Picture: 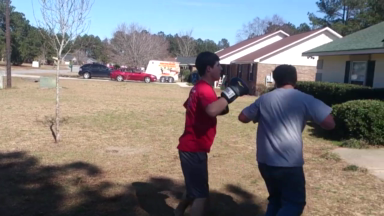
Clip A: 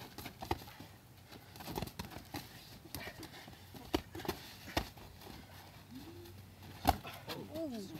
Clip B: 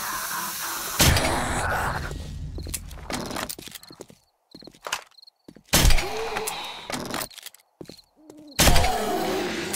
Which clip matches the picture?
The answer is A